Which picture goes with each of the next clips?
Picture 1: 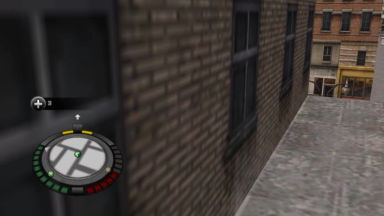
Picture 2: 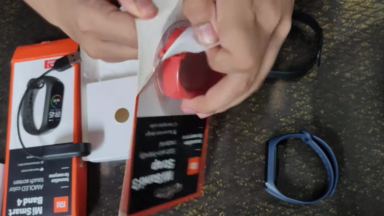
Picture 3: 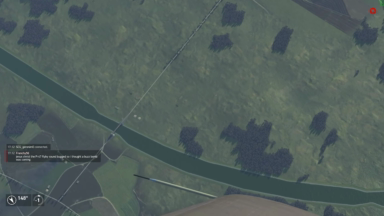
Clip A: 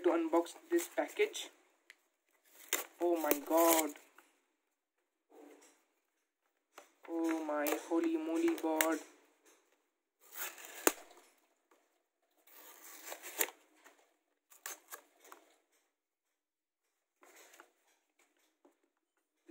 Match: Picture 2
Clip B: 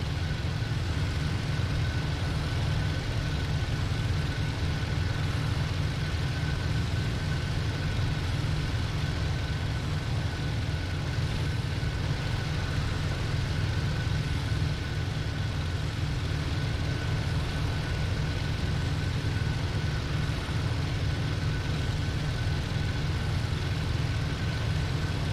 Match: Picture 3